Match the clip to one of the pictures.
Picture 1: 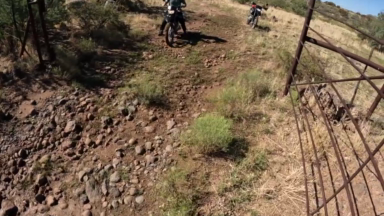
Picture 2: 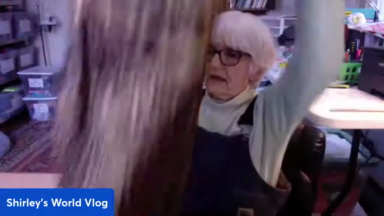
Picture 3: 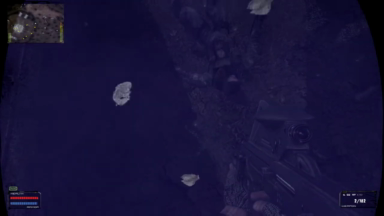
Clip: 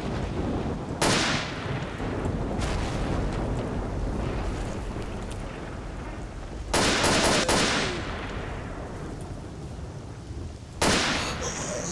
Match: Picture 3